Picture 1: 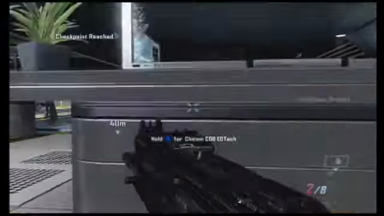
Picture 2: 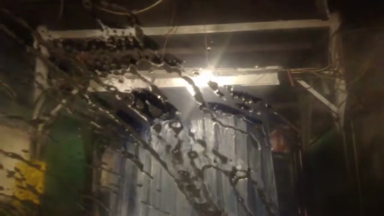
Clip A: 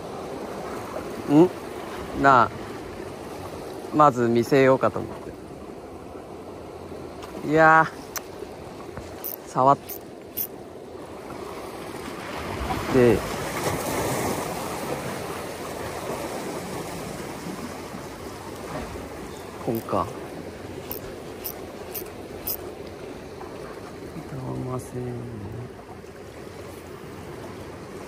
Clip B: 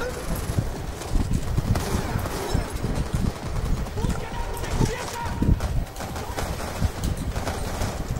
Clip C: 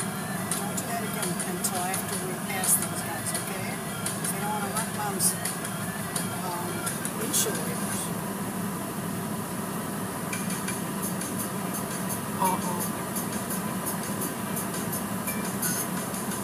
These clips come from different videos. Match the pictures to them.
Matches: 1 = B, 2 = C